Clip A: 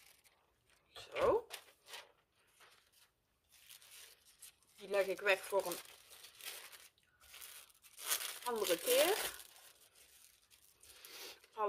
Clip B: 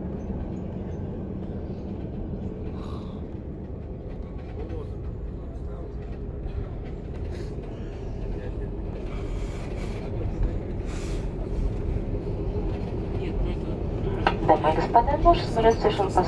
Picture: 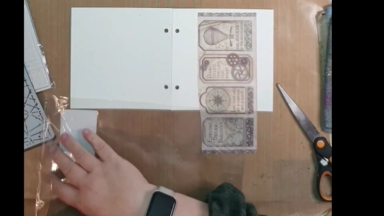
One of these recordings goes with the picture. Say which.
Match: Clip A